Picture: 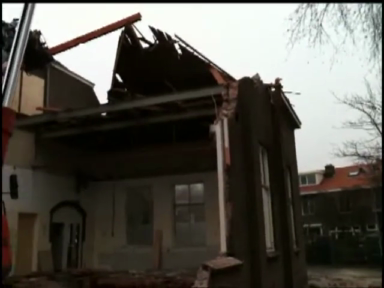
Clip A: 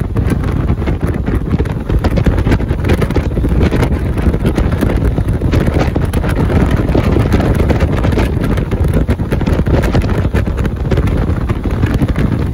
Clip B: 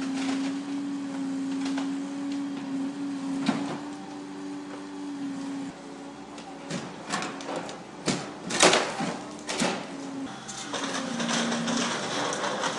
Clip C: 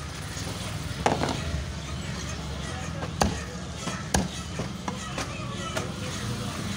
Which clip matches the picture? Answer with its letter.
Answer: B